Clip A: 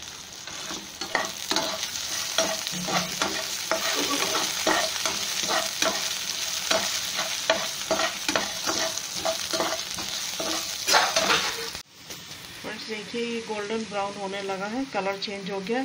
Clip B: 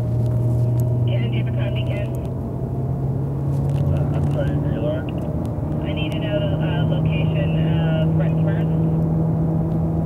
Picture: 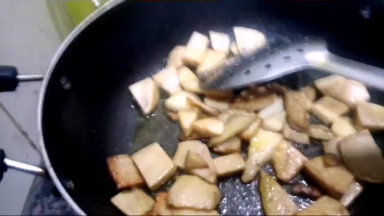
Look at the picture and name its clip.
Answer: A